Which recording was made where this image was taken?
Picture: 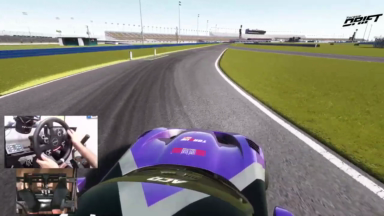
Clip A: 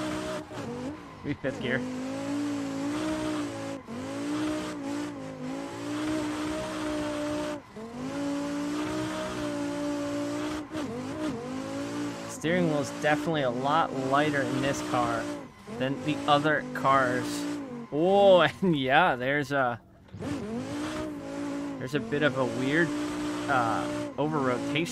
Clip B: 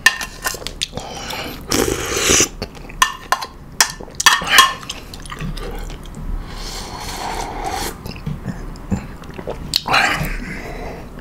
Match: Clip A